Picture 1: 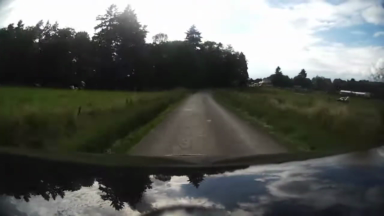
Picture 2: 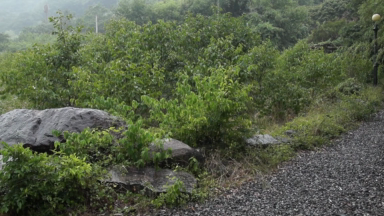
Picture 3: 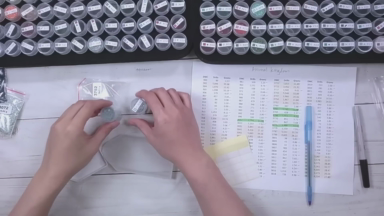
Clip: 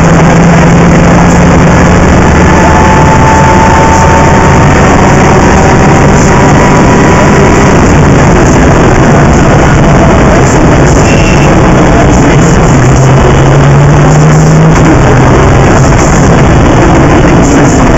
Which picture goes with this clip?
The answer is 1